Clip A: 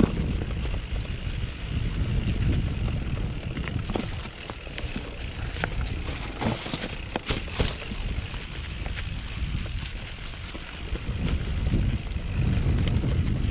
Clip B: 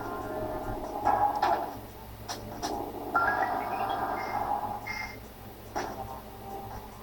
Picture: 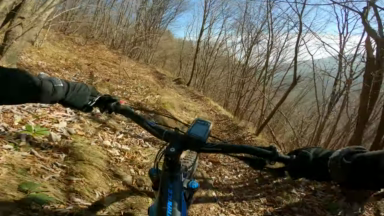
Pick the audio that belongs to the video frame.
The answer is A